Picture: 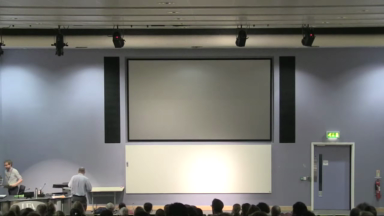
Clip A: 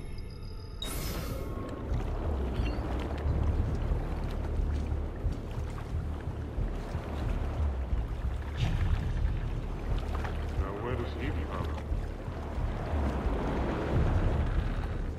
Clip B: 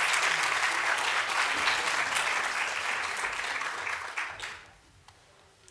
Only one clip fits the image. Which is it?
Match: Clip B